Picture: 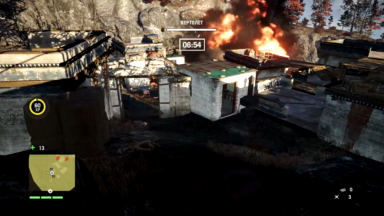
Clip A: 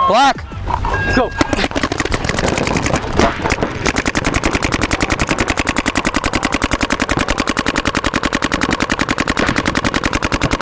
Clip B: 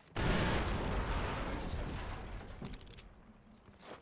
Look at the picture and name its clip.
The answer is B